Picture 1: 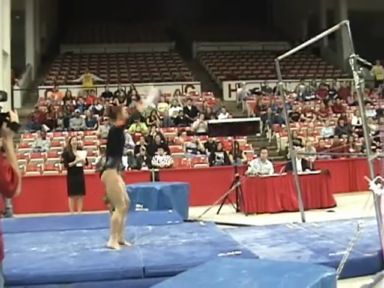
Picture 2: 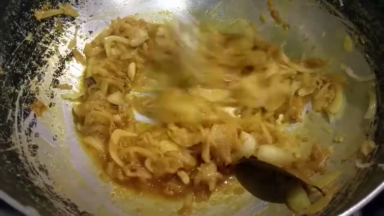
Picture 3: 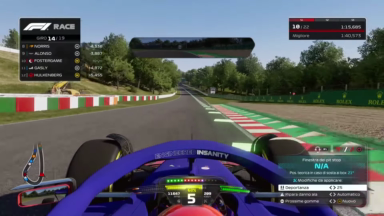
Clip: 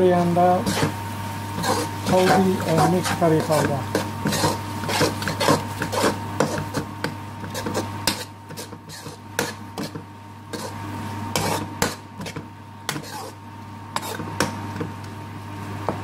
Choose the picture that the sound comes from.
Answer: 2